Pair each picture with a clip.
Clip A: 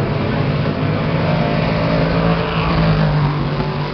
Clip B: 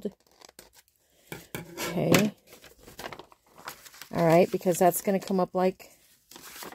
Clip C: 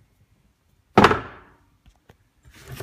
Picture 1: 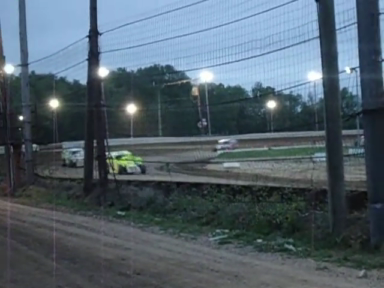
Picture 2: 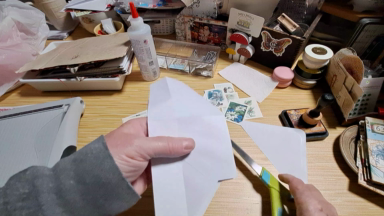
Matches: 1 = A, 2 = B